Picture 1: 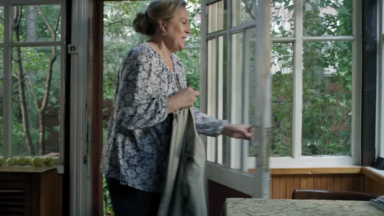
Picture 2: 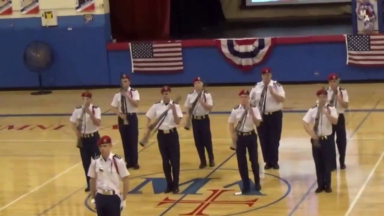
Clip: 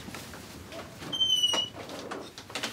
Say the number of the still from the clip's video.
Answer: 1